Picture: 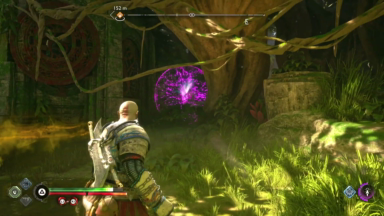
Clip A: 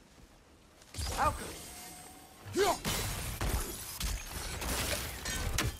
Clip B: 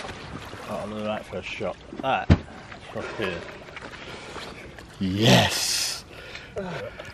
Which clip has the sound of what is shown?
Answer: A